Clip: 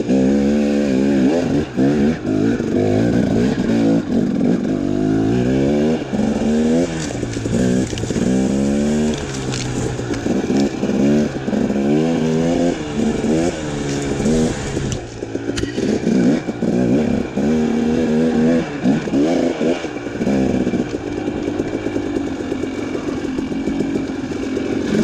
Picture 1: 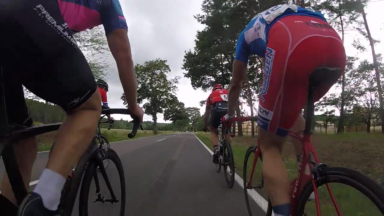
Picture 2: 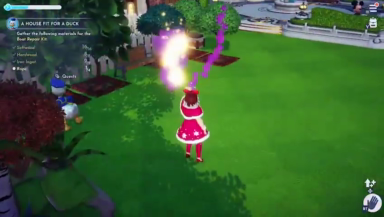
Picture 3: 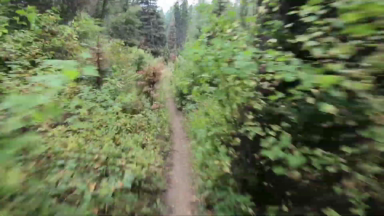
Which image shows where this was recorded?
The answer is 3